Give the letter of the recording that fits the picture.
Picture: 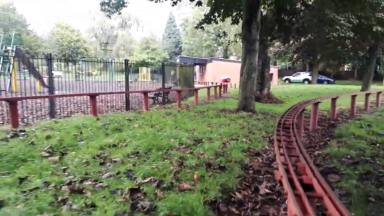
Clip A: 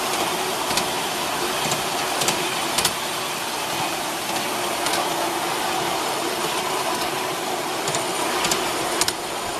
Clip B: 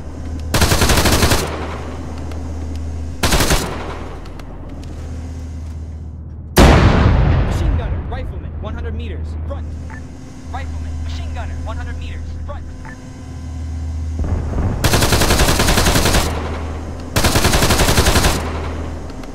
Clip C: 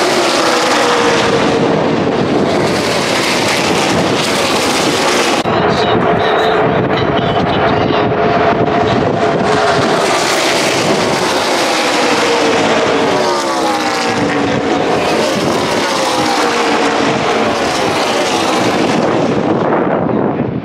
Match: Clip A